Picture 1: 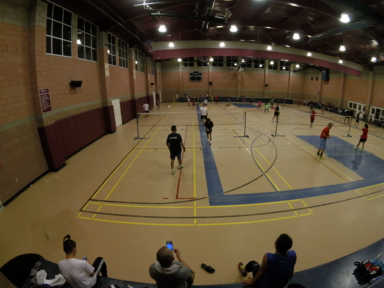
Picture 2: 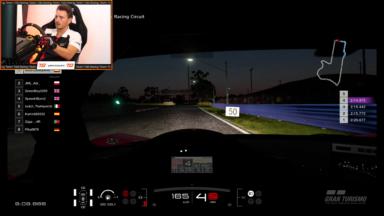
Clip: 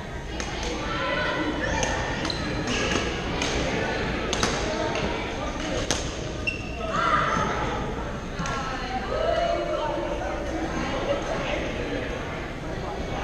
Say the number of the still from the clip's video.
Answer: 1